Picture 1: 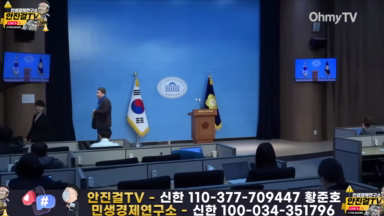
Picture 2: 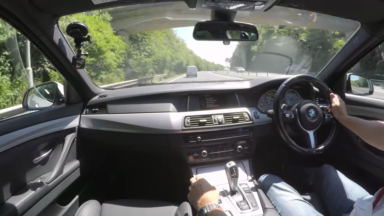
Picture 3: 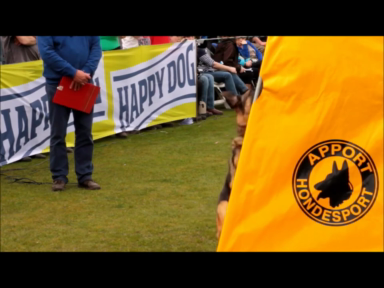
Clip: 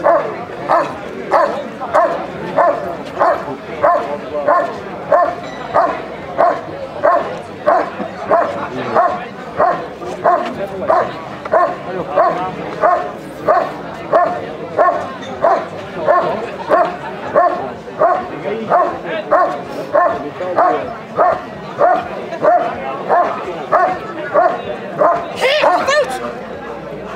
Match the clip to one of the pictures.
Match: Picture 3